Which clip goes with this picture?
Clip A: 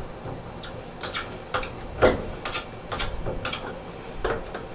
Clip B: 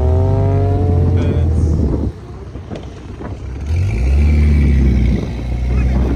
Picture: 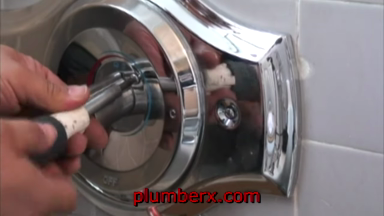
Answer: A